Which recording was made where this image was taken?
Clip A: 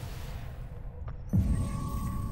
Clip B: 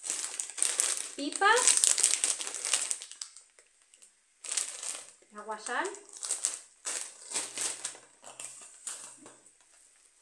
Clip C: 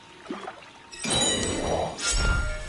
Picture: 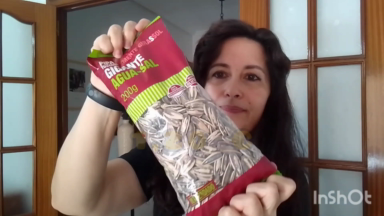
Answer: B